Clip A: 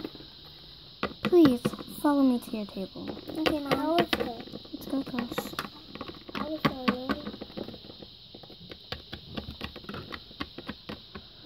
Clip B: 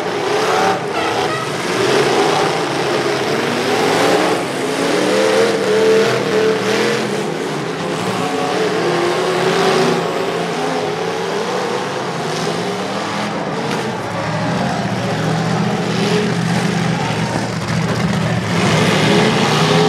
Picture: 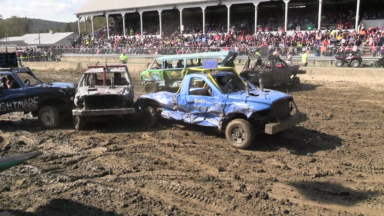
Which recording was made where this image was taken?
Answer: B